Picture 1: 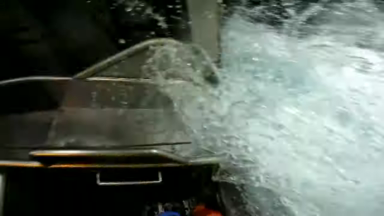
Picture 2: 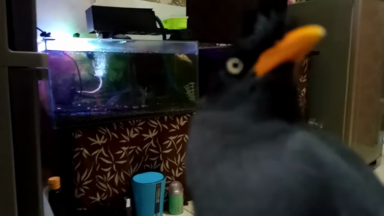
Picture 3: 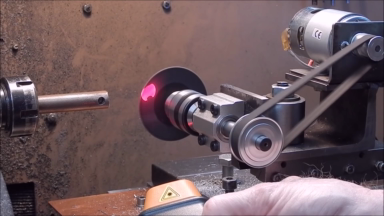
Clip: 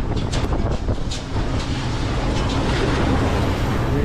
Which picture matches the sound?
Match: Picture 1